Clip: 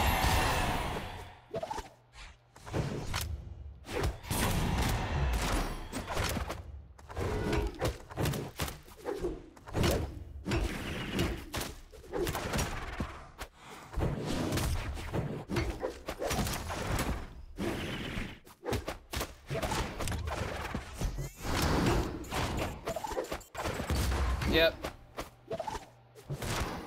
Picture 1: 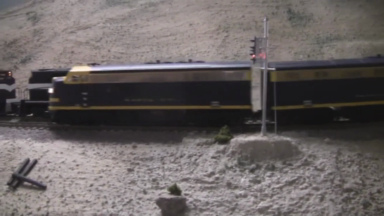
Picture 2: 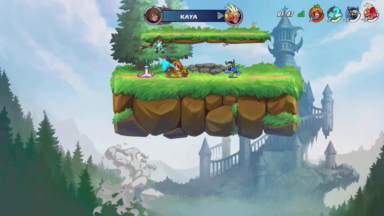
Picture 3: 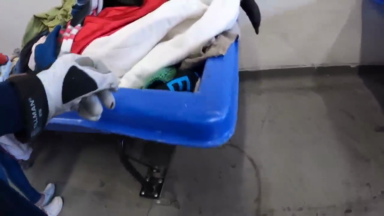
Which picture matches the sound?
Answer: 2